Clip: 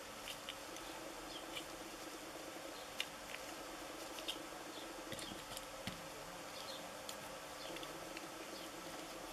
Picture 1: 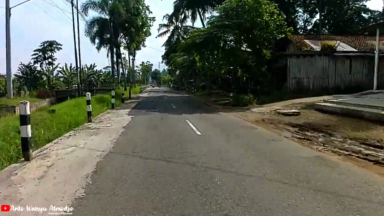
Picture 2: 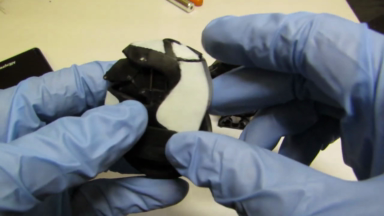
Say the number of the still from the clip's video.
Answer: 2